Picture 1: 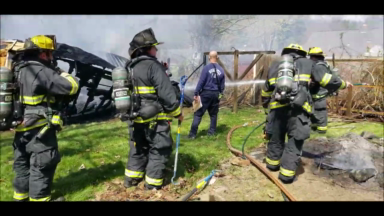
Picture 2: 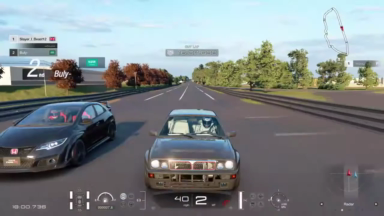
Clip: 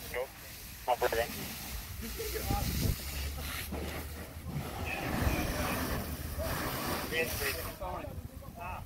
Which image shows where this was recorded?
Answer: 1